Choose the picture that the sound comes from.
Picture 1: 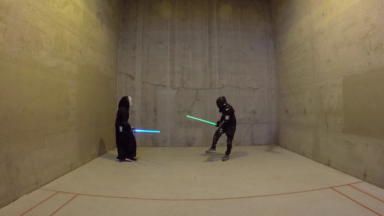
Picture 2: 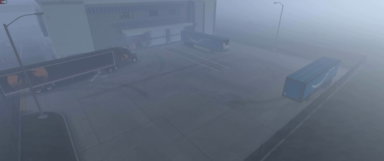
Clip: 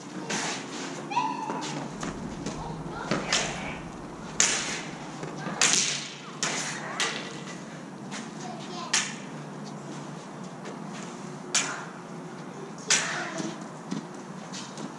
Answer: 1